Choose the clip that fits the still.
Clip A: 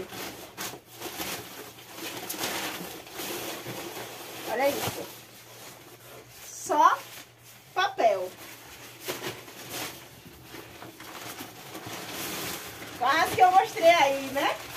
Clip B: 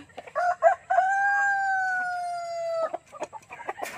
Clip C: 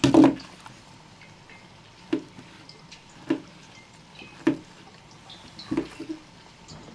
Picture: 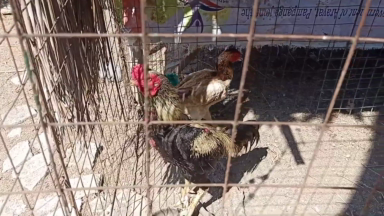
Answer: B